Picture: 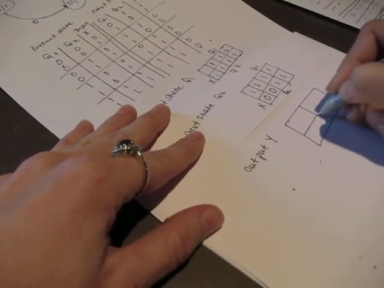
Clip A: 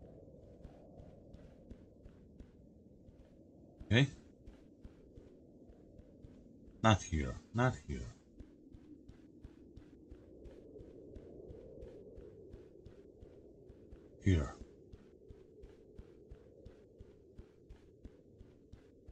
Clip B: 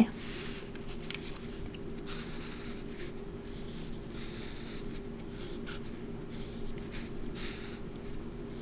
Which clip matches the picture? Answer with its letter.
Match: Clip B